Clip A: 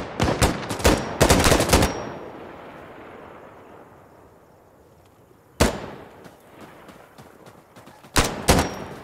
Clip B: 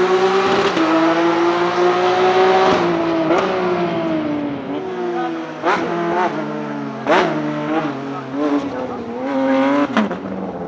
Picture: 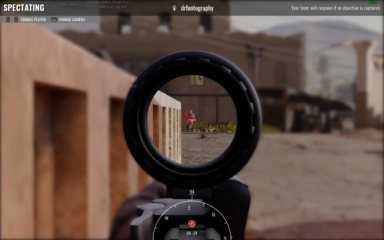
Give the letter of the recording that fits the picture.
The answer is A